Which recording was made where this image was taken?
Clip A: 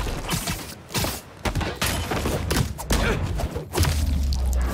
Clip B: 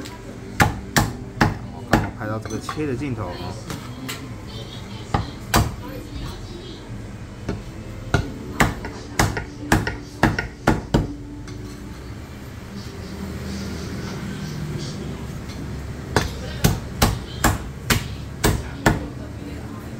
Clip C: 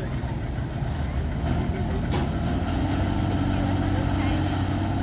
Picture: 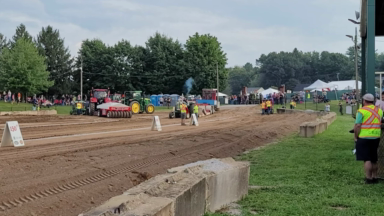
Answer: C